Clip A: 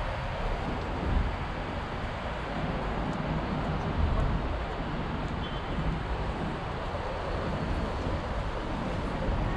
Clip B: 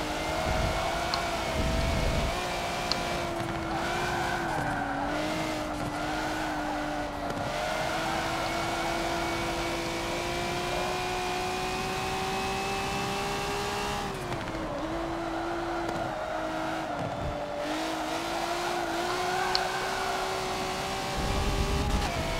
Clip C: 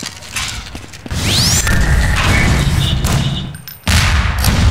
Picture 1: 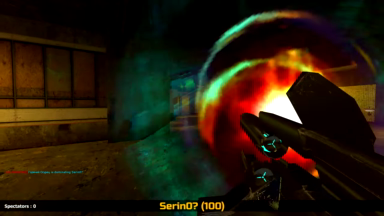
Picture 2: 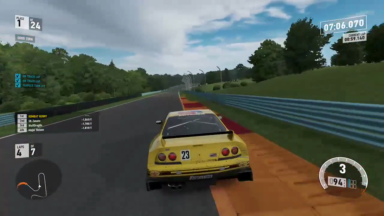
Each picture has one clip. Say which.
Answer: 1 C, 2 B